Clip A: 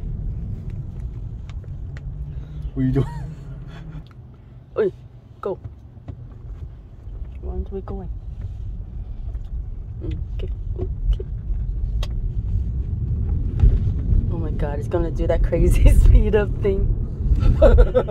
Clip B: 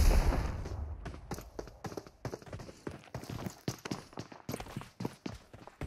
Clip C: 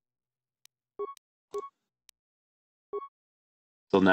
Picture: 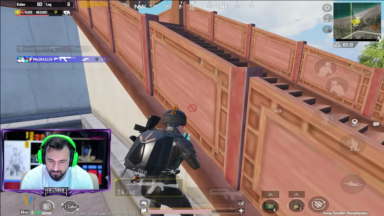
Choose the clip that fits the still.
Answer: B